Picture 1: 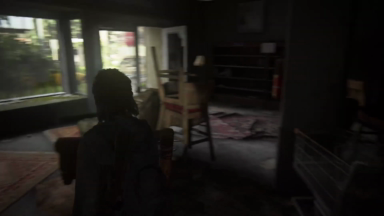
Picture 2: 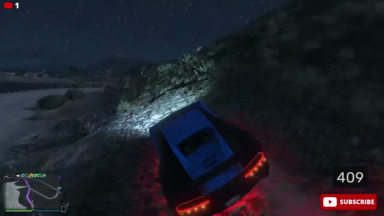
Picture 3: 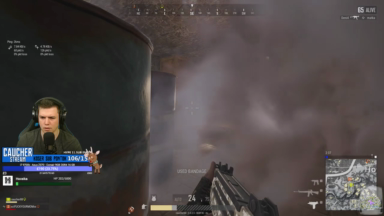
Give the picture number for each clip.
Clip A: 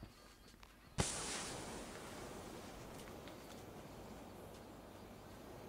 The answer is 3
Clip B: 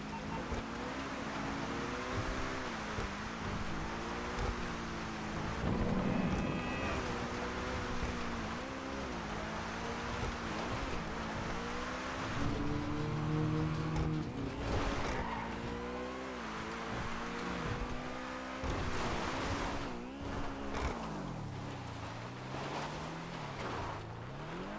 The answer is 2